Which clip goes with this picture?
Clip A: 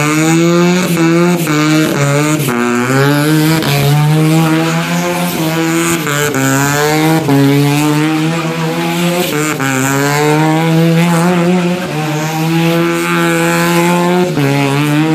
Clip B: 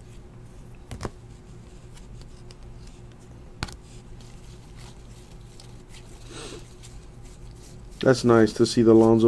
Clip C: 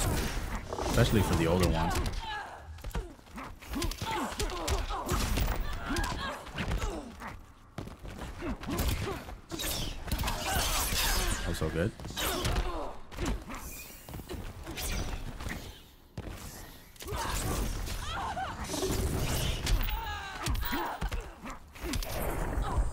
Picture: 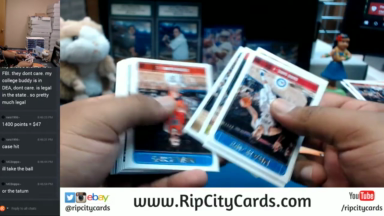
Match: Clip B